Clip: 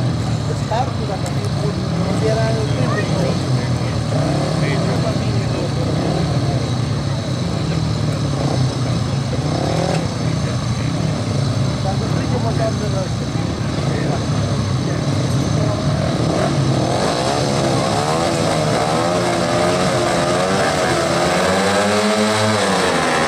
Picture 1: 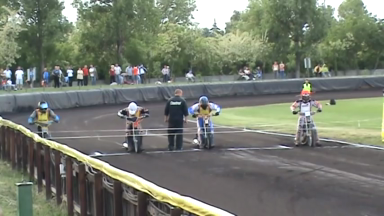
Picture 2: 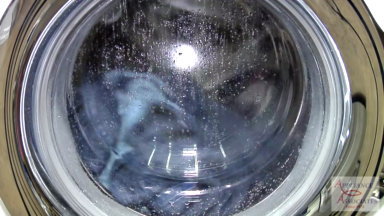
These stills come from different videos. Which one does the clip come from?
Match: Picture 1